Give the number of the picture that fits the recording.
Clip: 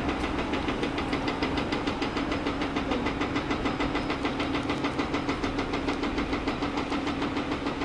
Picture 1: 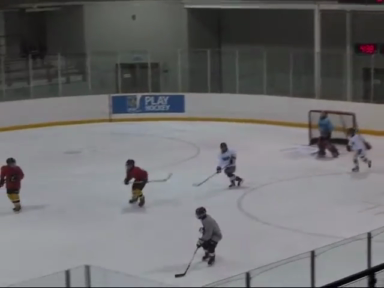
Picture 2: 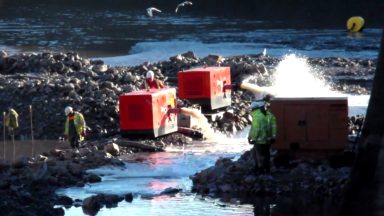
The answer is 2